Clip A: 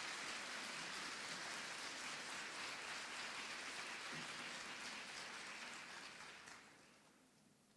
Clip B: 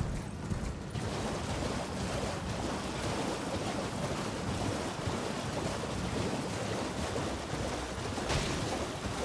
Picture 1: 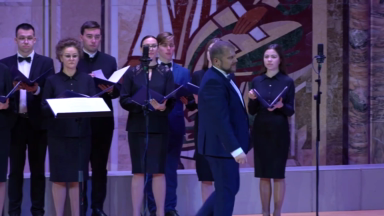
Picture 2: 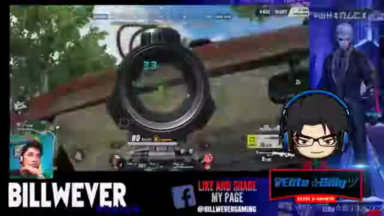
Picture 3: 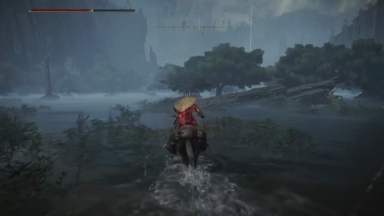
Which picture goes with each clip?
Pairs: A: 1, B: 3